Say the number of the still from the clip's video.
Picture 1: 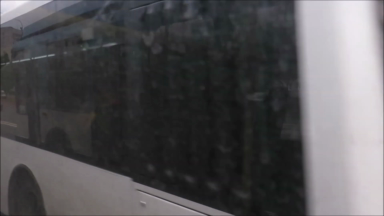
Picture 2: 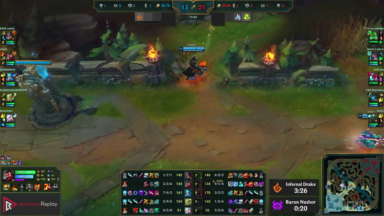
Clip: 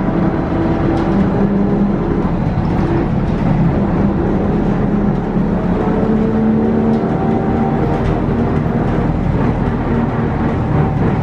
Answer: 1